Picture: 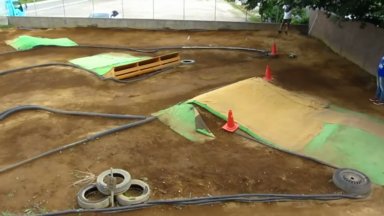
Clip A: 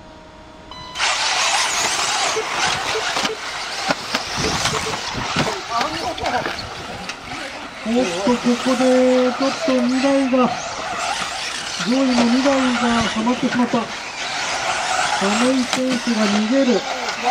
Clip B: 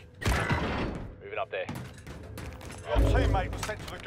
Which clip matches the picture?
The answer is A